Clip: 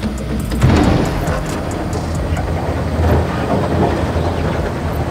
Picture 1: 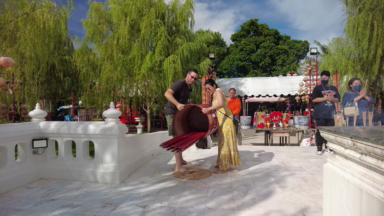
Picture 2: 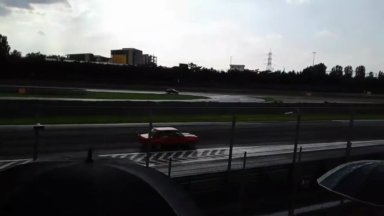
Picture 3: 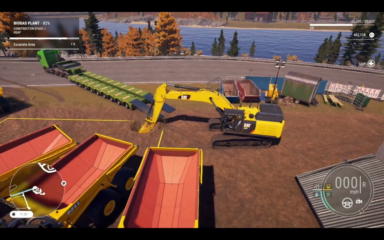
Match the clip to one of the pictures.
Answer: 3